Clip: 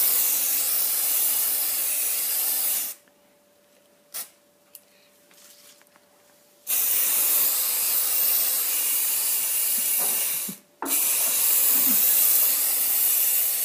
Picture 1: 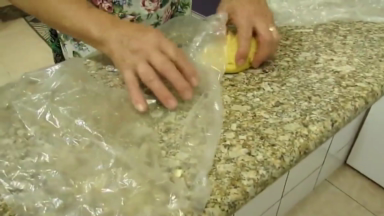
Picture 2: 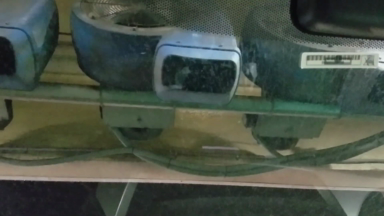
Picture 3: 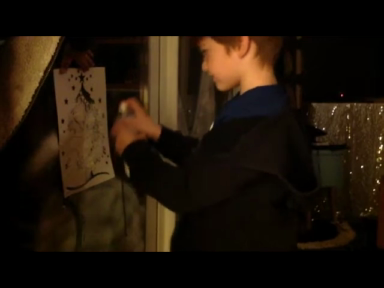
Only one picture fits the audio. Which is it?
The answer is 3